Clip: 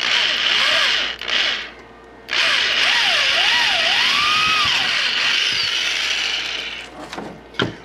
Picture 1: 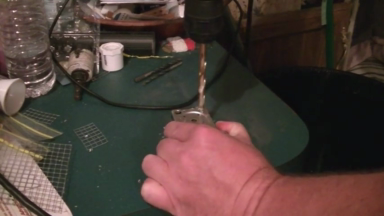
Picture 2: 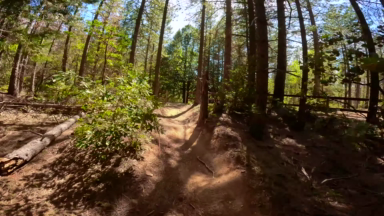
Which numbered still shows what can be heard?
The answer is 1